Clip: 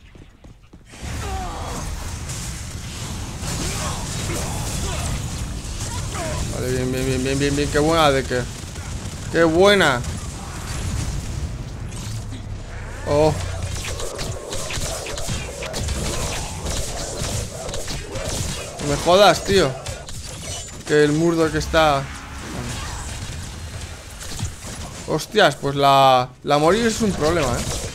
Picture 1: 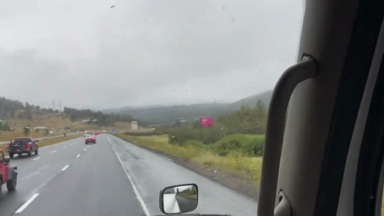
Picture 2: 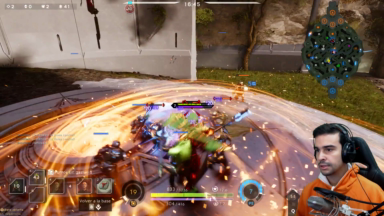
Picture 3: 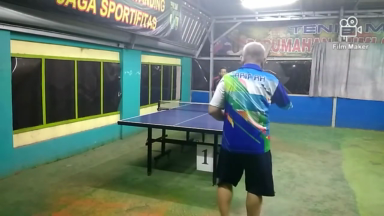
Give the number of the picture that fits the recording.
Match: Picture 2